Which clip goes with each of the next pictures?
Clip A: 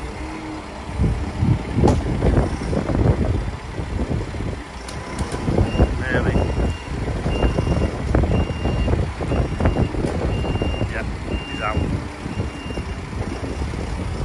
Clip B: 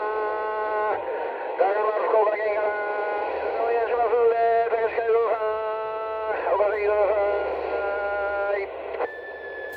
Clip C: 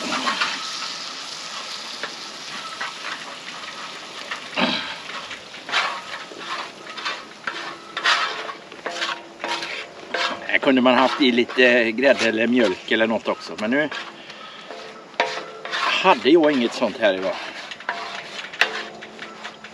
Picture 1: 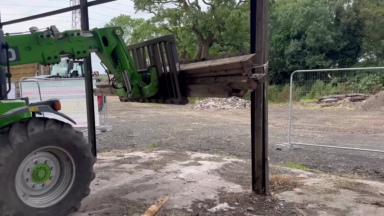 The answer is A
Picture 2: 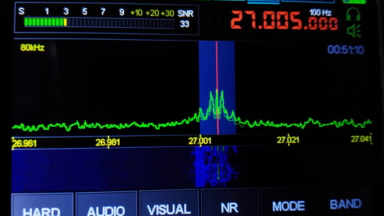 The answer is B